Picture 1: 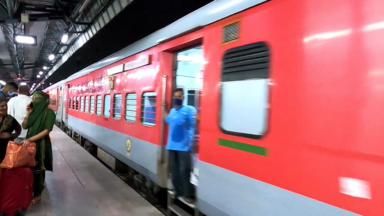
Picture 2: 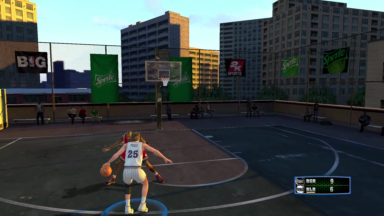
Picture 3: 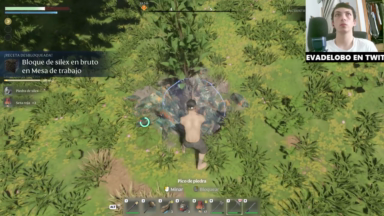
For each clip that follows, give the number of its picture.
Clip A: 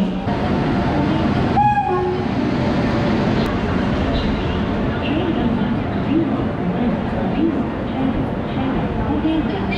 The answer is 1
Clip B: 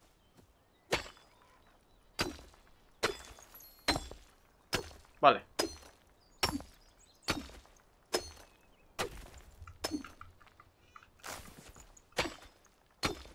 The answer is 3